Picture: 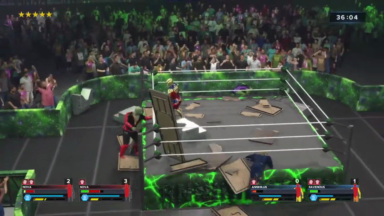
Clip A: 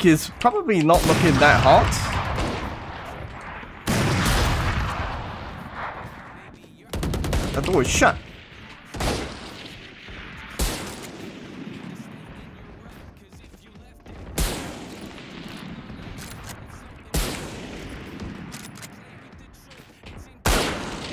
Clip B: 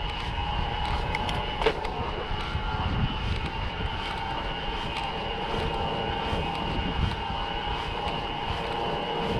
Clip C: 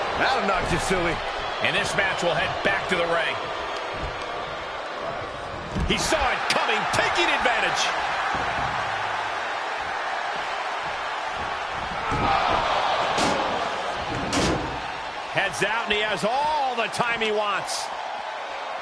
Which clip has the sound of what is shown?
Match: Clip C